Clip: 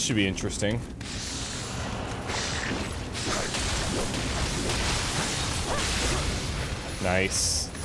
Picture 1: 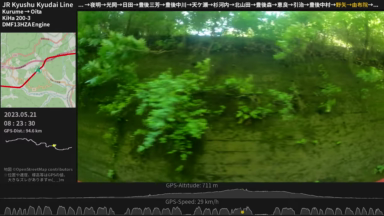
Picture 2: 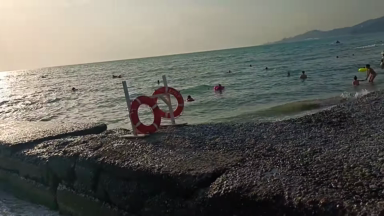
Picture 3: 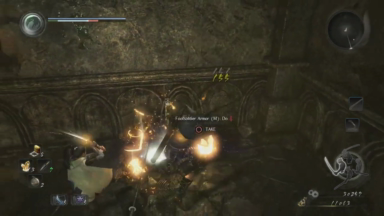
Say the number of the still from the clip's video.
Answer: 3